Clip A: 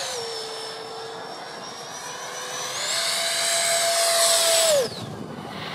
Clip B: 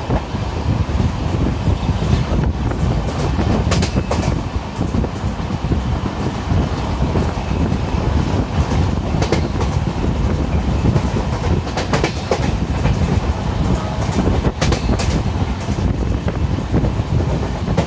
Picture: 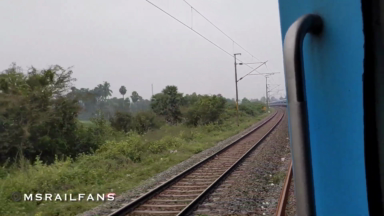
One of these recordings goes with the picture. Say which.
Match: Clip B